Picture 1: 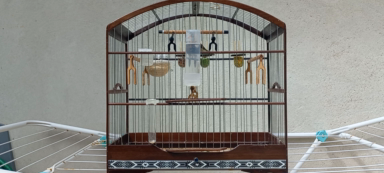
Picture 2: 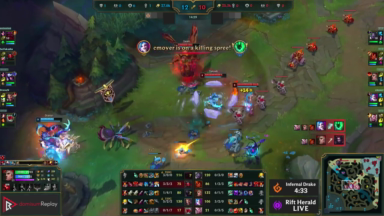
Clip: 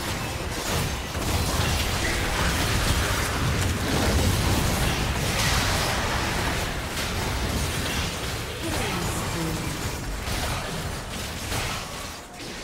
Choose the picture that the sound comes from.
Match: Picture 2